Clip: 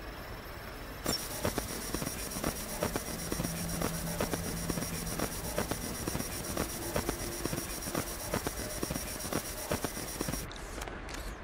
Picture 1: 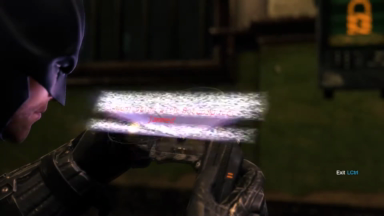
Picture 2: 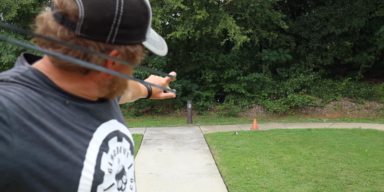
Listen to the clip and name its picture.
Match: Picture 1